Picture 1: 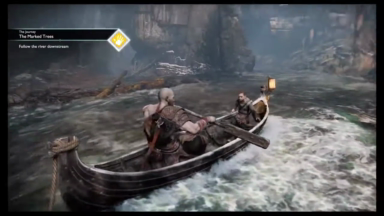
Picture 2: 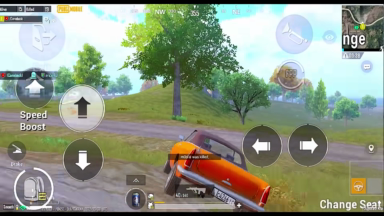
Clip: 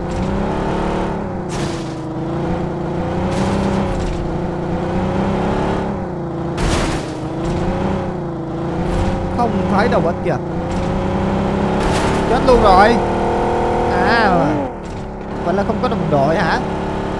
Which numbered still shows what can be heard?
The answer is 2